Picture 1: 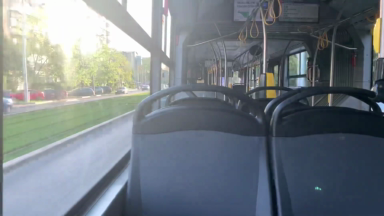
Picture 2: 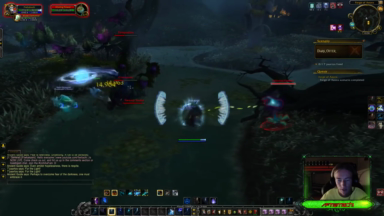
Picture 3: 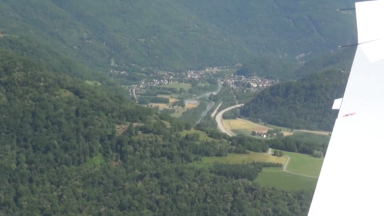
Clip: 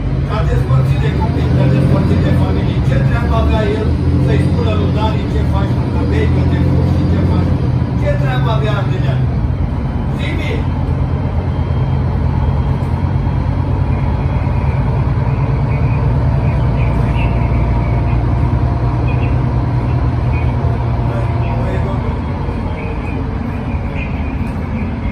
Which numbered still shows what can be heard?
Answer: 1